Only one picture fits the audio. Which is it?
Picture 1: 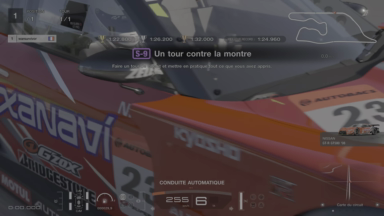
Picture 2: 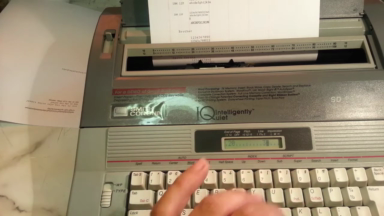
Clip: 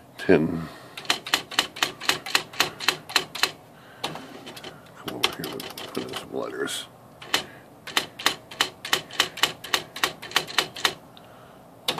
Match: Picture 2